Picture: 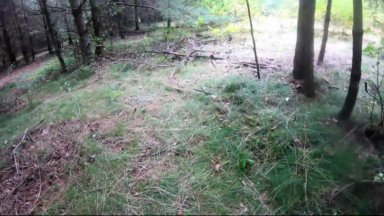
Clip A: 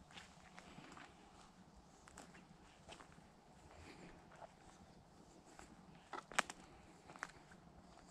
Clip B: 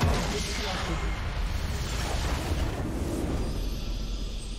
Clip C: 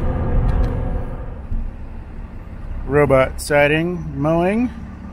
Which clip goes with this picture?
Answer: A